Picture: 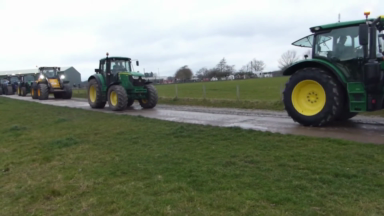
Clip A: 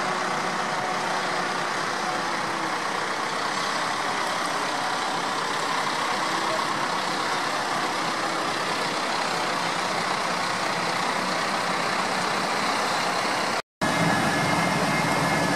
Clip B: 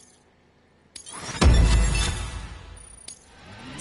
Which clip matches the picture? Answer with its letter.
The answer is A